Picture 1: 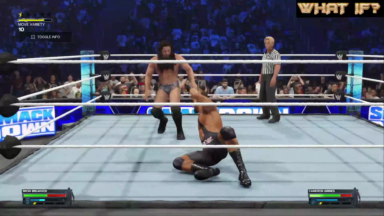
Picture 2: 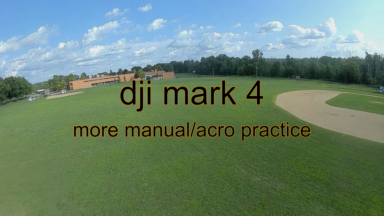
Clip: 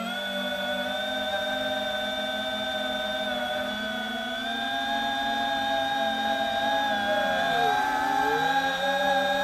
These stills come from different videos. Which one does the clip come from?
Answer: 2